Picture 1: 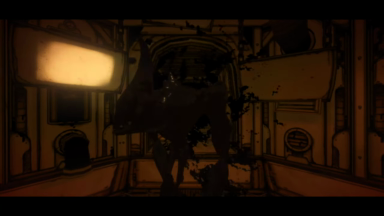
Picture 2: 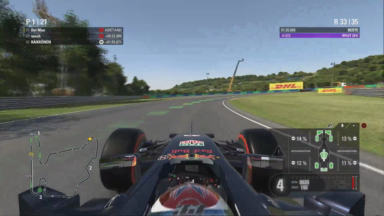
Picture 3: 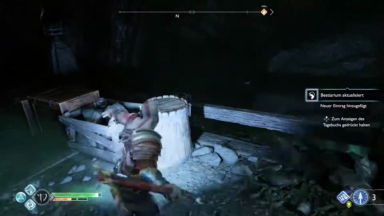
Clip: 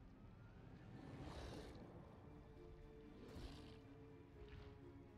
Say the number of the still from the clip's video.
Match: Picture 1